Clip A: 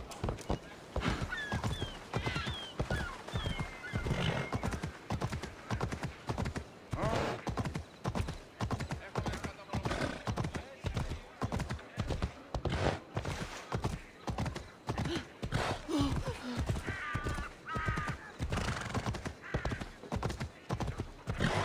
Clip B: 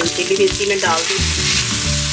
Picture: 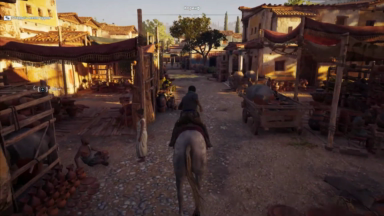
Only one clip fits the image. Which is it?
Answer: A